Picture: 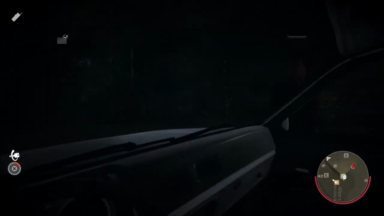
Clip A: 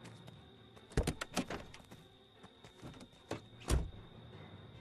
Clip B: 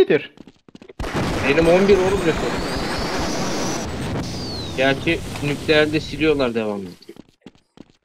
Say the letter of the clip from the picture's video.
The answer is A